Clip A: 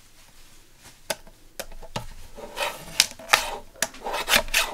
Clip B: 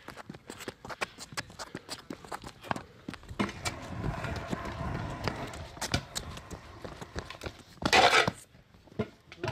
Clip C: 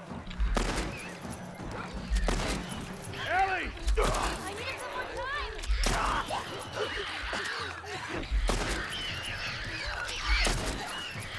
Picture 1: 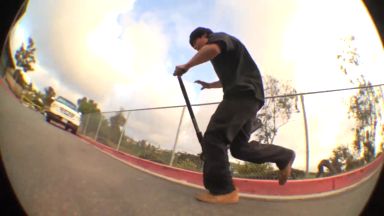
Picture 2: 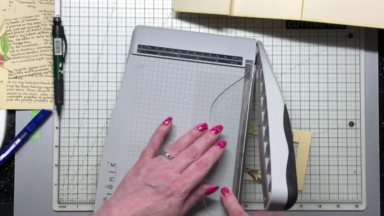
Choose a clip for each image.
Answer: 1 B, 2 A